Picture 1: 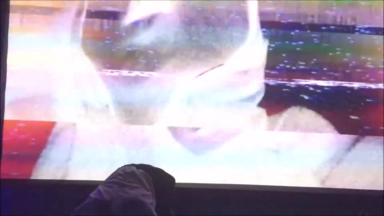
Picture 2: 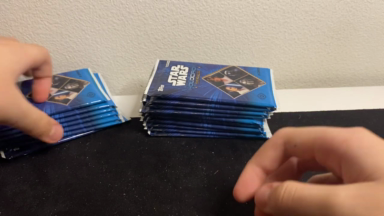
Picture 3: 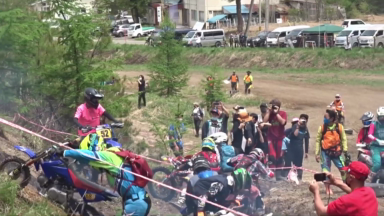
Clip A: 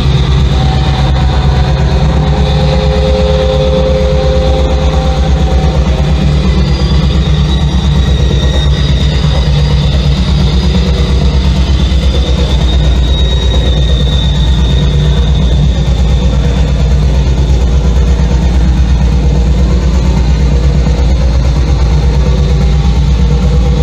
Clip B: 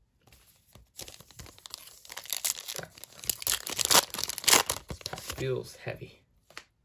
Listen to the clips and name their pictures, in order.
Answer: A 1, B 2